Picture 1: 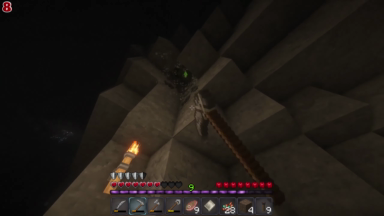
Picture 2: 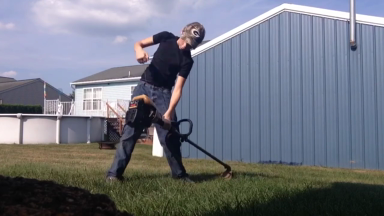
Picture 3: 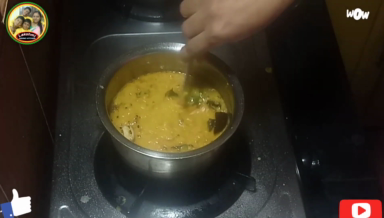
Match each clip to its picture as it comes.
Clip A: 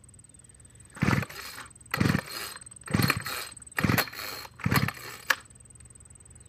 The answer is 2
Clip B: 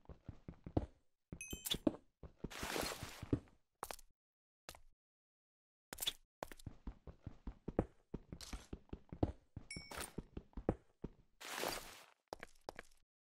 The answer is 1